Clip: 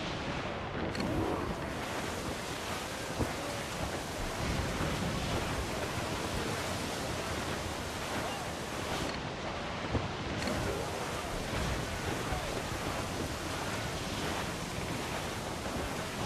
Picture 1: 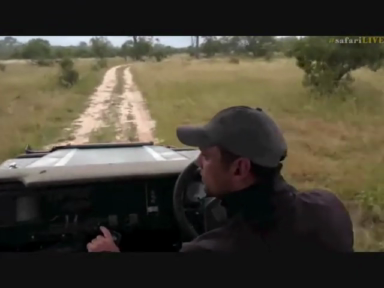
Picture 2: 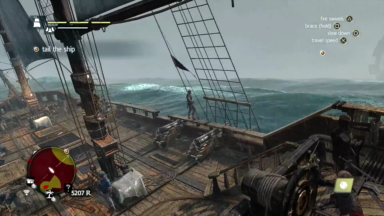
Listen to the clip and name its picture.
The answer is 2